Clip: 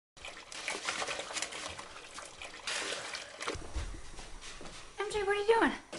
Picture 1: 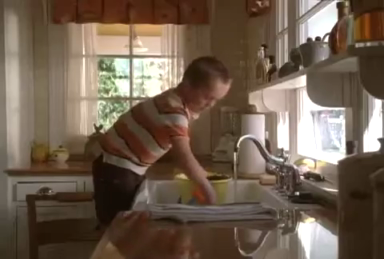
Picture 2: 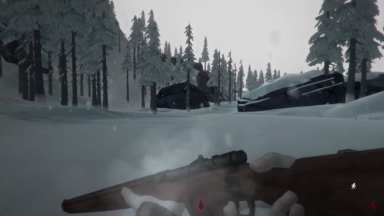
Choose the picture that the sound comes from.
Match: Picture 1